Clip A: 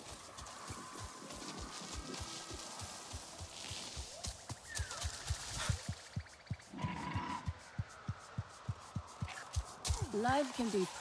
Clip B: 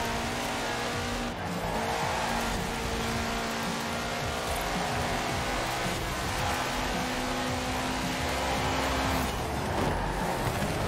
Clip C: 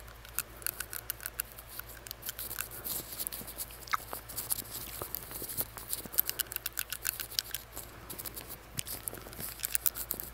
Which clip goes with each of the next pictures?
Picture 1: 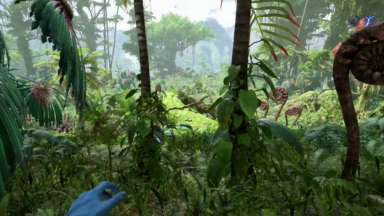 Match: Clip A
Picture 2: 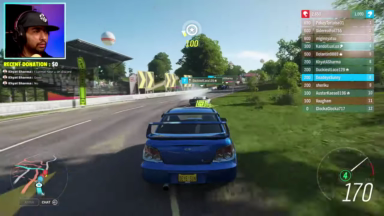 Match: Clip B